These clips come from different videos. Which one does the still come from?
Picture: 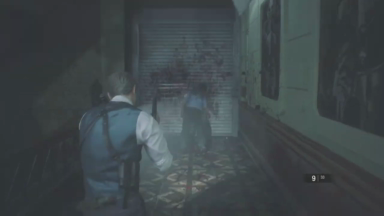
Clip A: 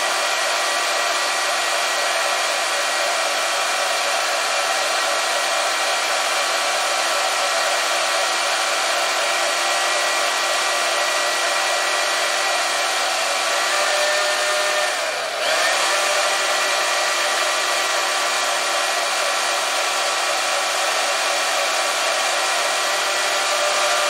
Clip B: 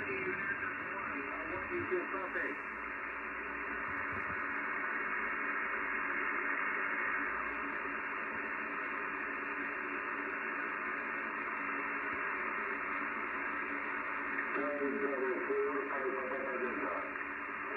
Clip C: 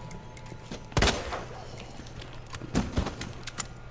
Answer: C